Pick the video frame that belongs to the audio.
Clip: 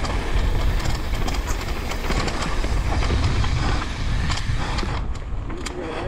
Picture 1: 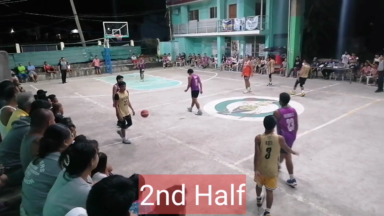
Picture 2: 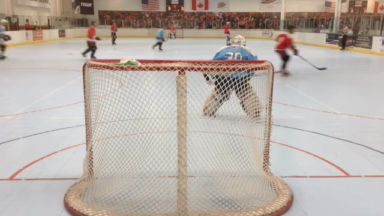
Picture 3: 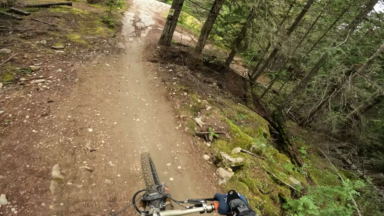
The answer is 3